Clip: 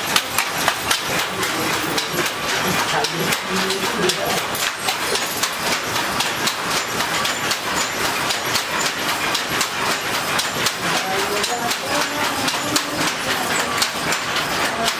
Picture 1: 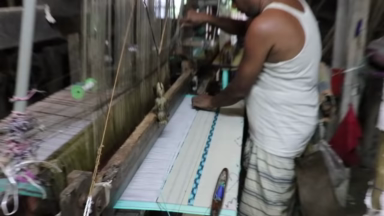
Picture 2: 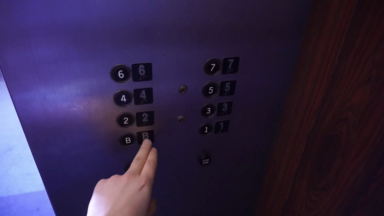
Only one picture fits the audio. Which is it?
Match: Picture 1